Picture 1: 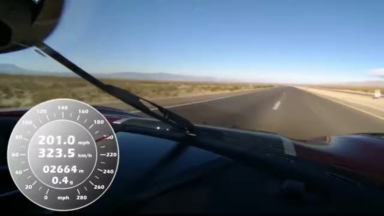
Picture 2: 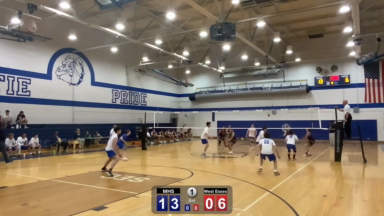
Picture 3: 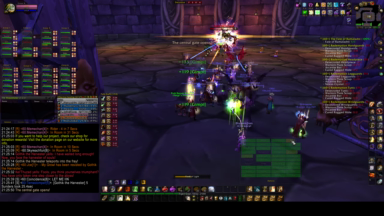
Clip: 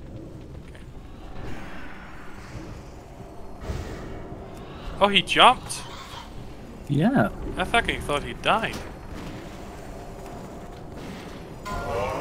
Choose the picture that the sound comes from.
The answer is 3